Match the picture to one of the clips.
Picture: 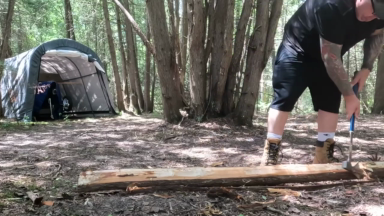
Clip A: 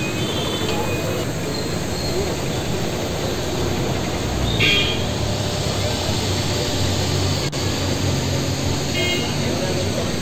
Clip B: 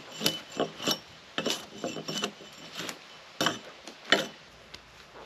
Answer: B